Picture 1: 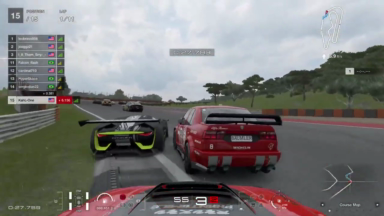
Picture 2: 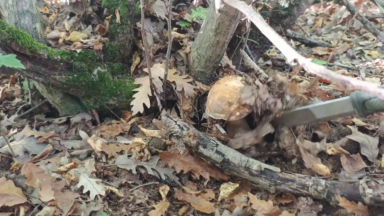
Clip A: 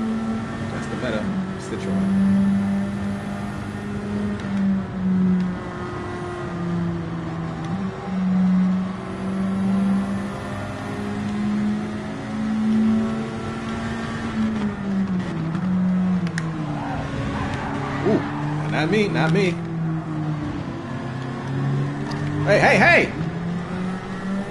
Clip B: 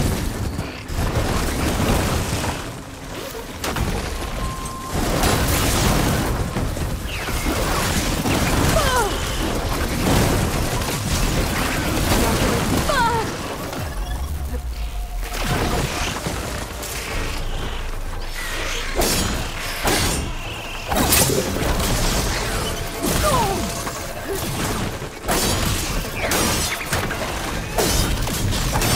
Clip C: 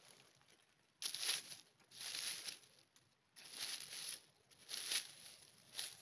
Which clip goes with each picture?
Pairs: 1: A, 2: C